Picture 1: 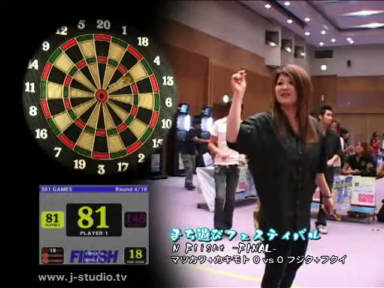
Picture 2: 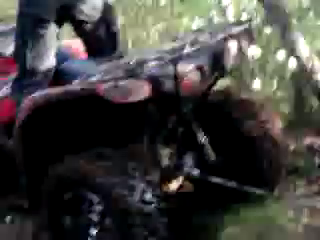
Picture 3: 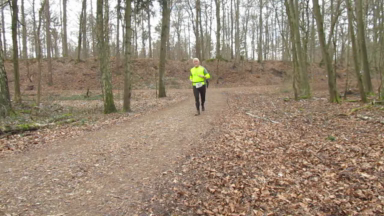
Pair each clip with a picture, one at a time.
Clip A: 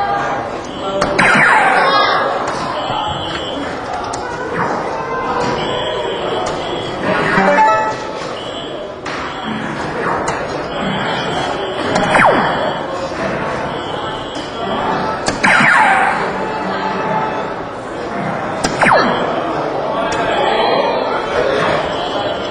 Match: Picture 1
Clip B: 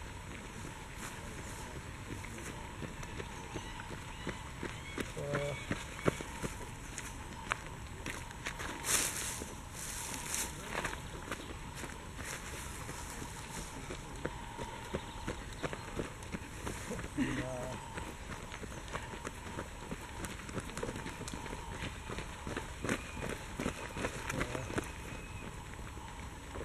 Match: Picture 3